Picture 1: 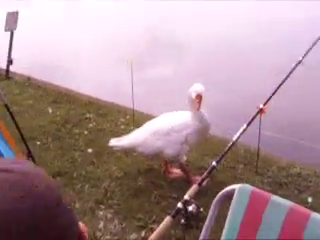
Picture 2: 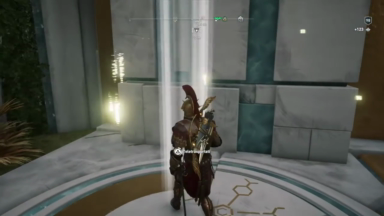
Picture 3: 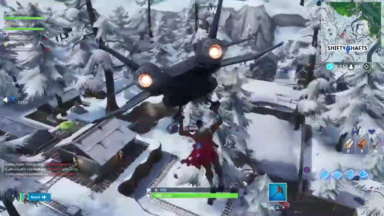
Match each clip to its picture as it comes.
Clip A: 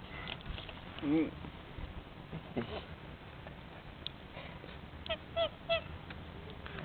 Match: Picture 1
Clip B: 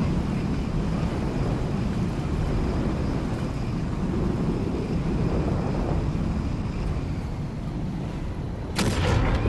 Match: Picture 3